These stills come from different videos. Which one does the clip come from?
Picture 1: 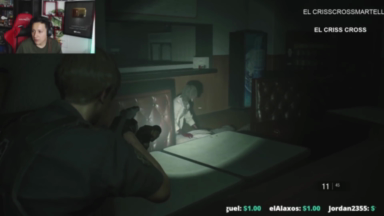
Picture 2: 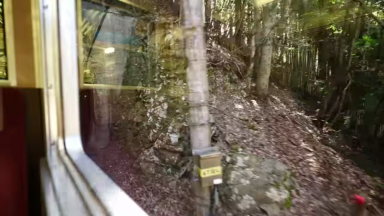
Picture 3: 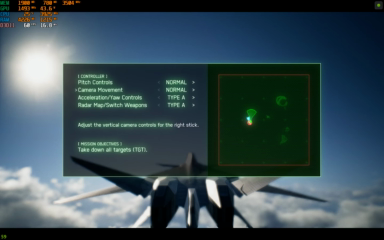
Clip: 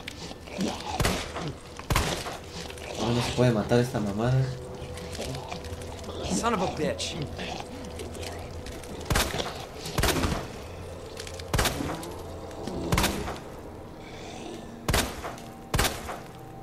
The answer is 1